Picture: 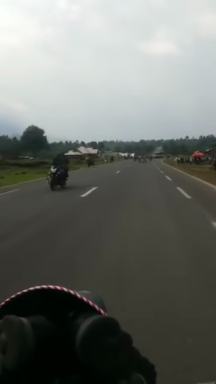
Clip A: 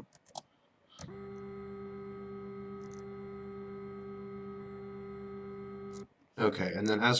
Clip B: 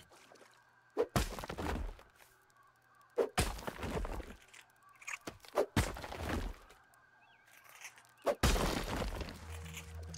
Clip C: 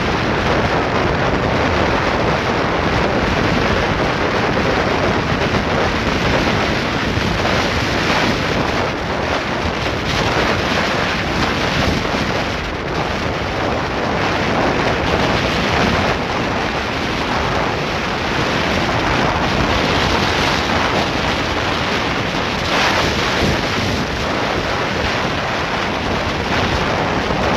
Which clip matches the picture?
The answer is C